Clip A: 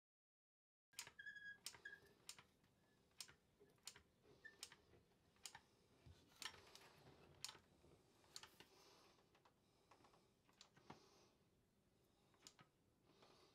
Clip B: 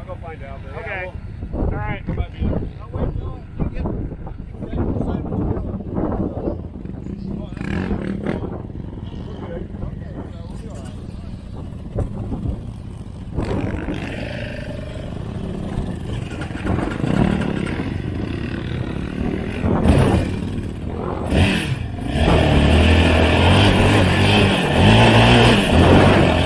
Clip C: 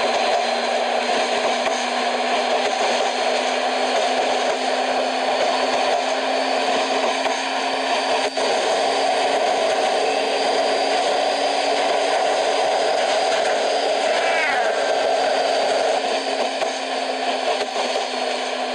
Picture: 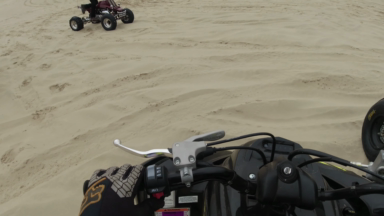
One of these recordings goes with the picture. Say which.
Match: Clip B